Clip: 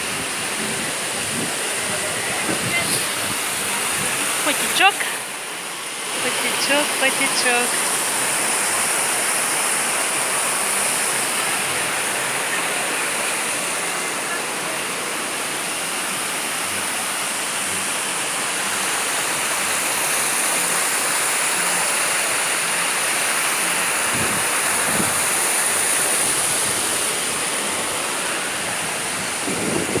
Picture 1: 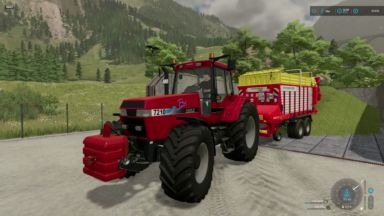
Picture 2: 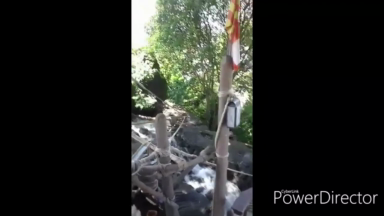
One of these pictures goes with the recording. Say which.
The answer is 2